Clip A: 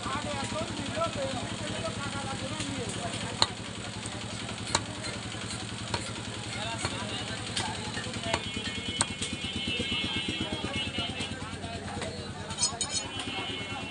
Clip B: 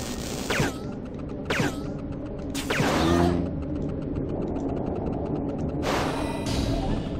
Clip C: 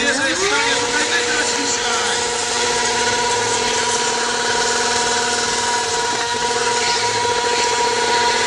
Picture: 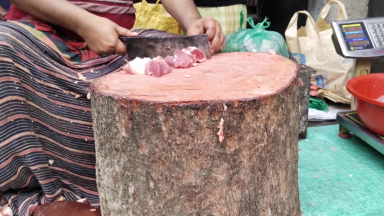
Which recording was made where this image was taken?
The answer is A